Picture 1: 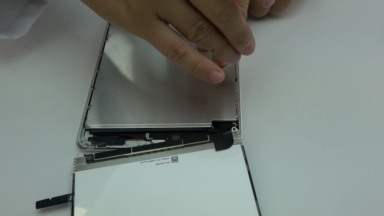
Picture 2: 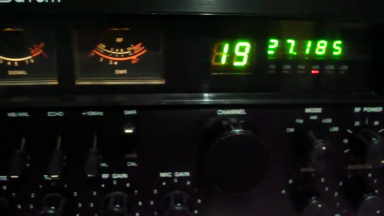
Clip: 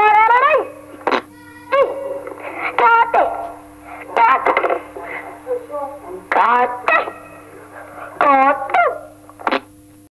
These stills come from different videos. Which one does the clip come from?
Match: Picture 2